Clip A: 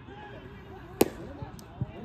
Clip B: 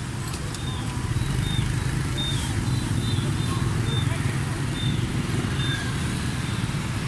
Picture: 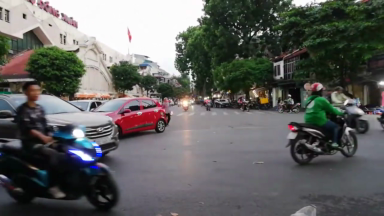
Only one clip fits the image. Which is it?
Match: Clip B